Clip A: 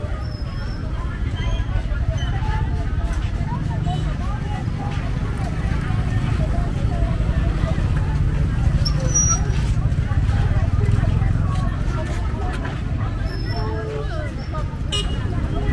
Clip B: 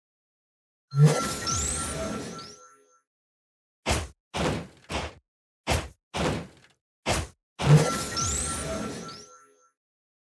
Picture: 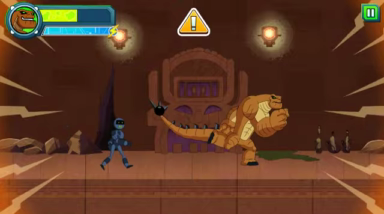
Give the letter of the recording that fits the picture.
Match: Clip B